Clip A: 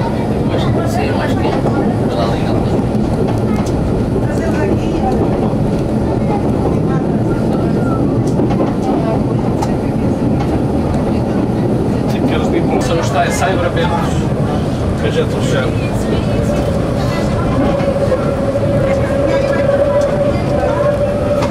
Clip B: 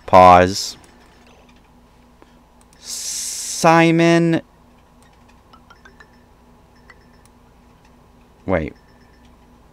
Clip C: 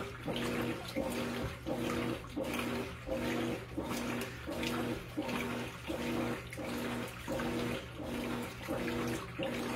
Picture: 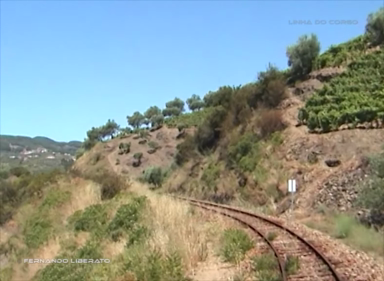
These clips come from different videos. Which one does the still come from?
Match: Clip A